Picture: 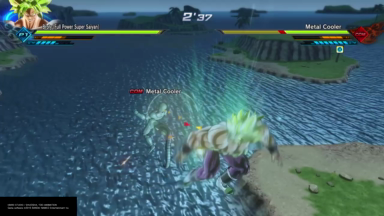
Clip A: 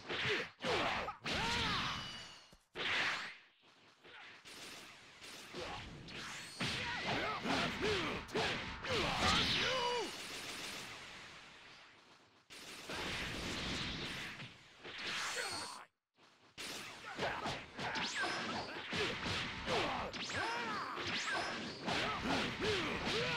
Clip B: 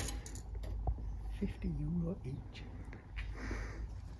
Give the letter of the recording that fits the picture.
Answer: A